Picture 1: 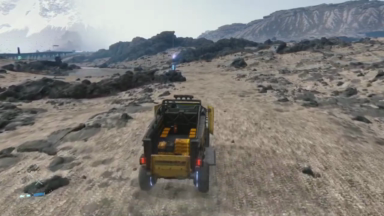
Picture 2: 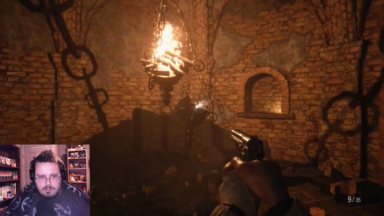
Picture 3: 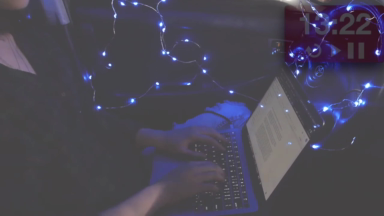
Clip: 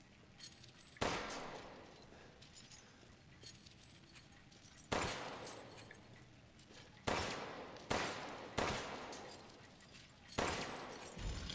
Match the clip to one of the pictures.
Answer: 2